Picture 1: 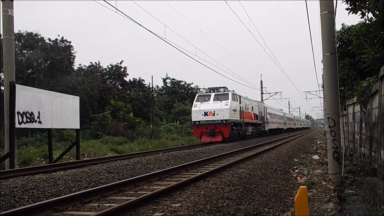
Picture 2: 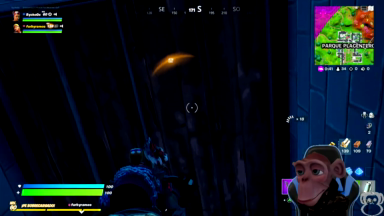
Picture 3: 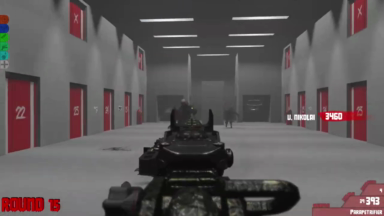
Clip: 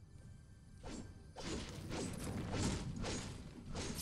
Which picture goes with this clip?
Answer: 2